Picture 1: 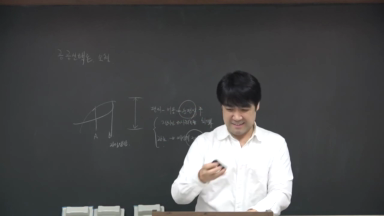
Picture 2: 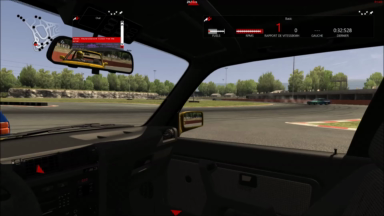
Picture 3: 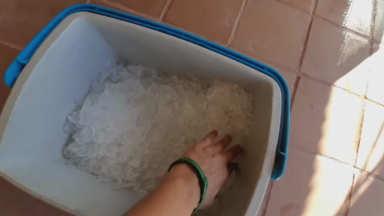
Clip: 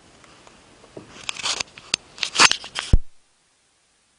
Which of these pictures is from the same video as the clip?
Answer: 1